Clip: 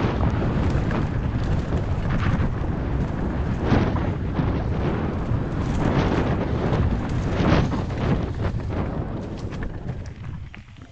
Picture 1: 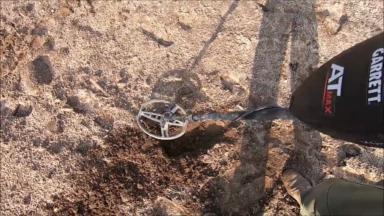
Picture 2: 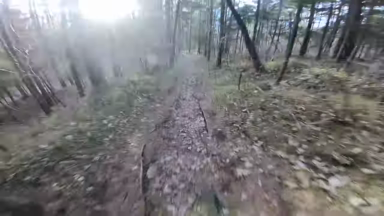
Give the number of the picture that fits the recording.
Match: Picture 2